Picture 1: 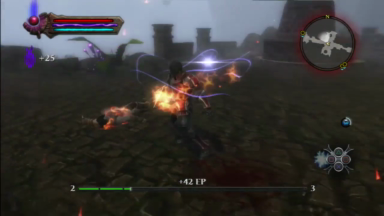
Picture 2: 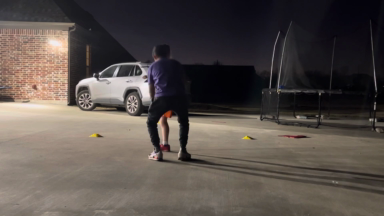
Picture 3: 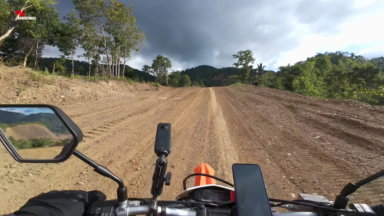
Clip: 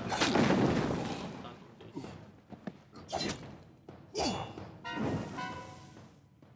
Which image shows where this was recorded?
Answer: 1